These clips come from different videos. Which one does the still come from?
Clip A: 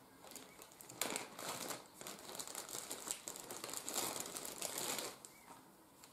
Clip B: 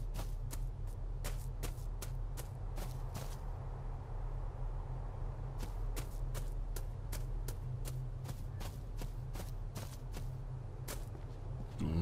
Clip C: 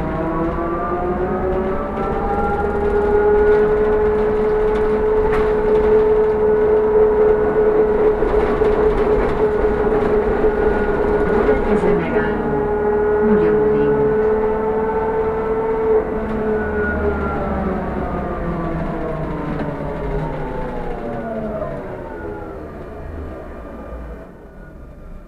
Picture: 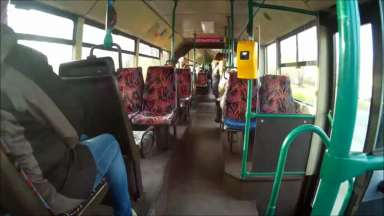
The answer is C